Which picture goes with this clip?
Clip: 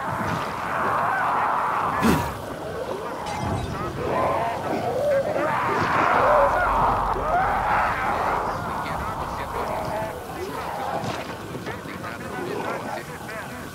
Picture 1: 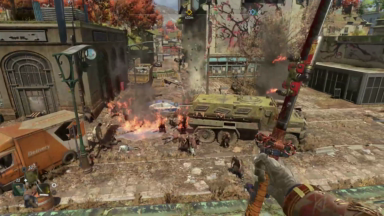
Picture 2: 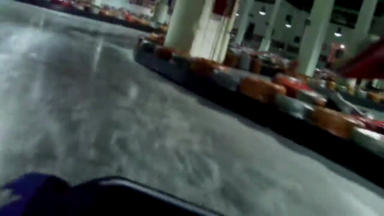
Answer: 1